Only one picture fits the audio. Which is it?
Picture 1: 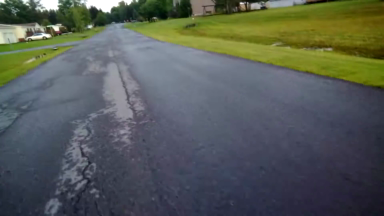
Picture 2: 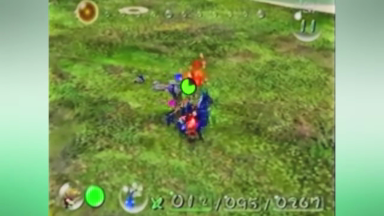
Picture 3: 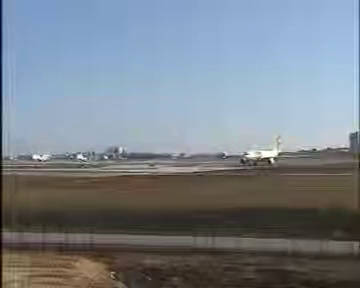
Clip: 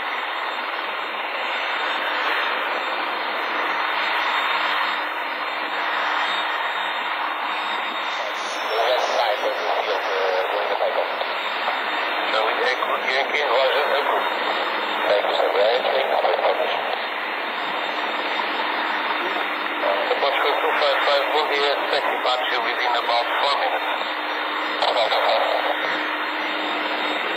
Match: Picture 3